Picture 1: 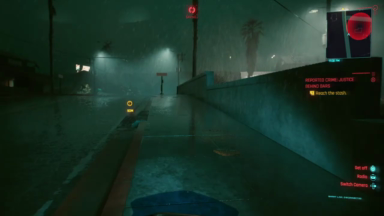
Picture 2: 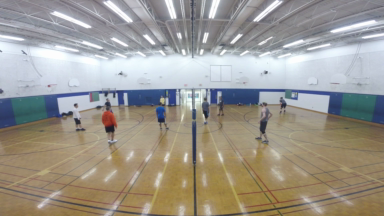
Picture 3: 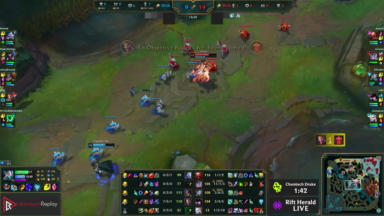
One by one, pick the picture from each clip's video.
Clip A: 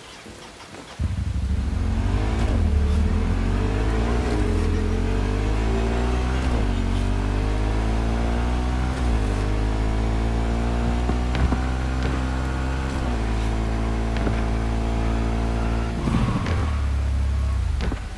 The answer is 1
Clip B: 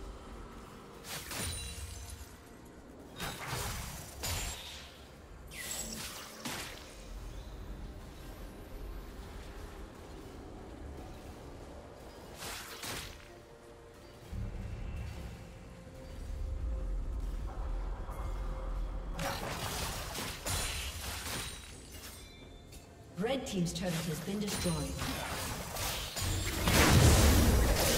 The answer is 3